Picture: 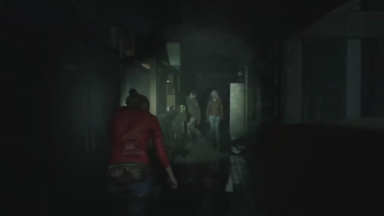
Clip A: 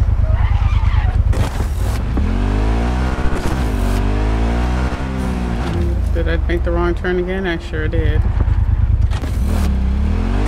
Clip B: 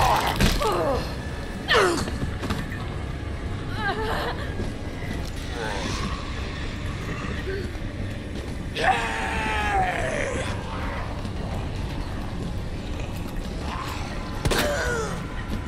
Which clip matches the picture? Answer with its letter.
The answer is B